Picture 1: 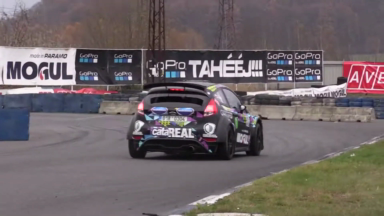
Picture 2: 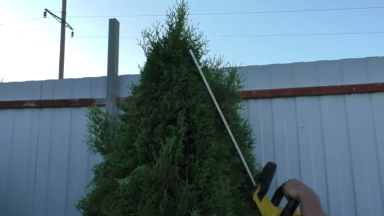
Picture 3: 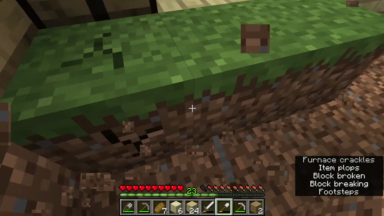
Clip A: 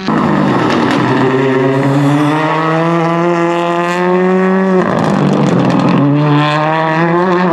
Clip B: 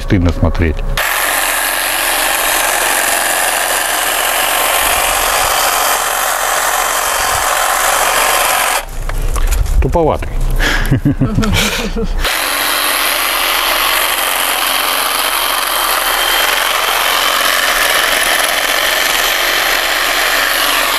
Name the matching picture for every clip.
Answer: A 1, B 2